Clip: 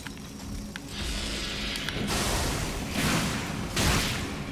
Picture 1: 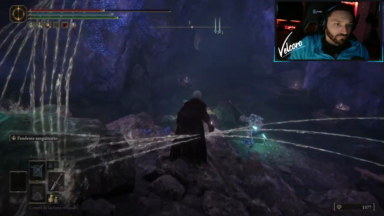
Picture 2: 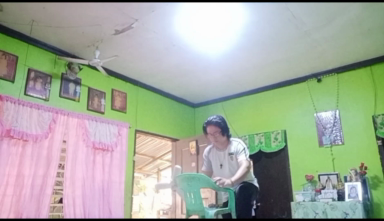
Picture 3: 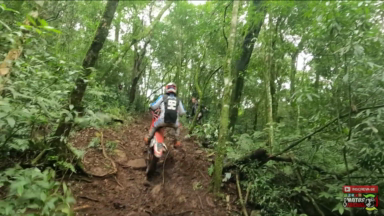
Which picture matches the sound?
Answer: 1